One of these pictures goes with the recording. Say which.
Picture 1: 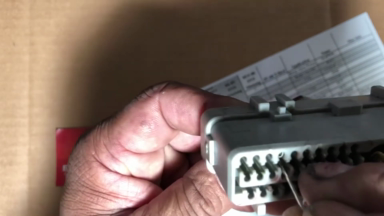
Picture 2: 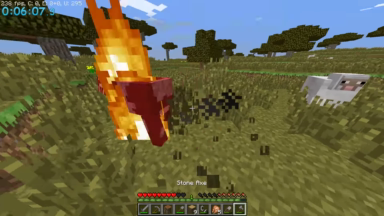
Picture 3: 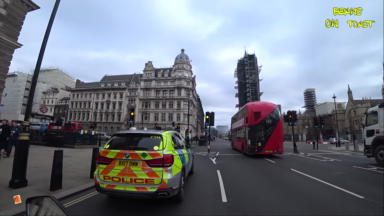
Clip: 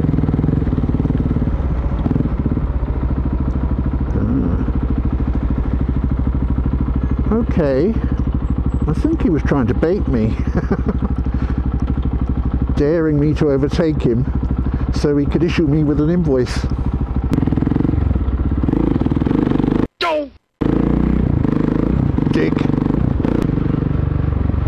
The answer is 3